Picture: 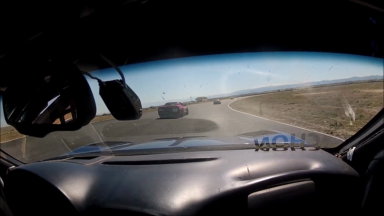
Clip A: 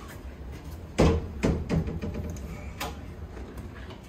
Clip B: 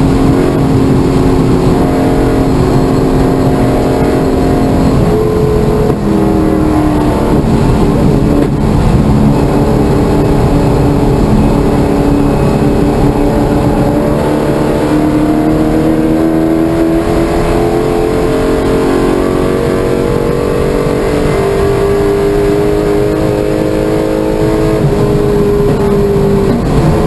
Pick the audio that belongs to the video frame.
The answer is B